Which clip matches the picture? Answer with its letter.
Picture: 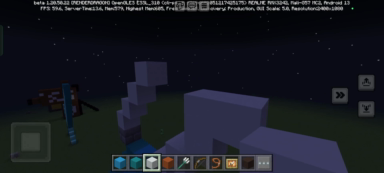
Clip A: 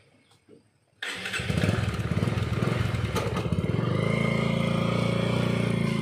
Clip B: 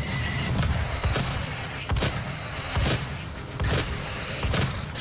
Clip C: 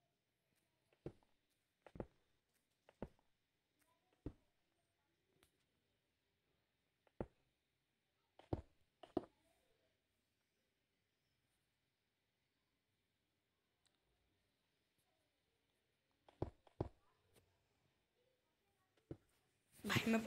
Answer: C